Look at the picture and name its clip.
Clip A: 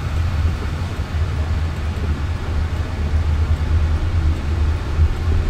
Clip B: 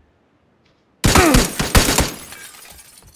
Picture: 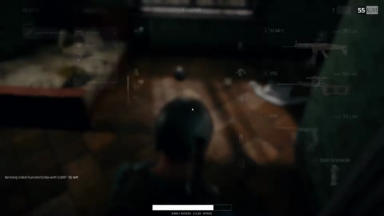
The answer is B